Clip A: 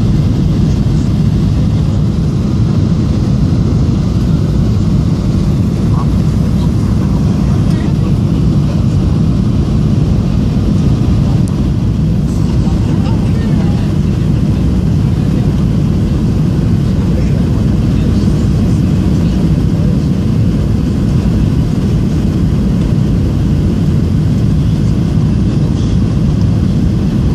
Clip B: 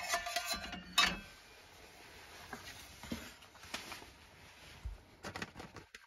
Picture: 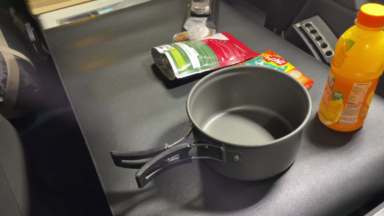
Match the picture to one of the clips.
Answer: B